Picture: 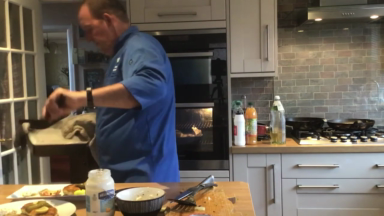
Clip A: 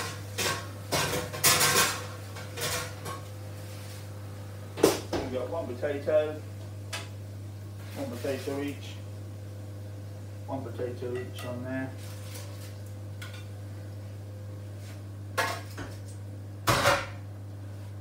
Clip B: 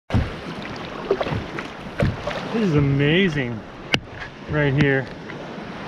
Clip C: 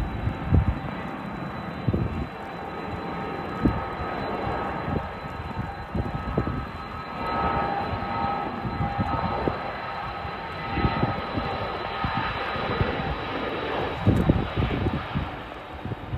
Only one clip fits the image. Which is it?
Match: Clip A